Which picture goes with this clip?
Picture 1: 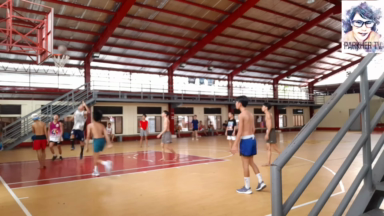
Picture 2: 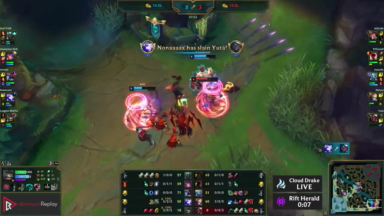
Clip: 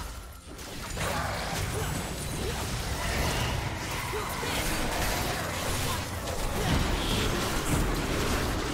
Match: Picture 2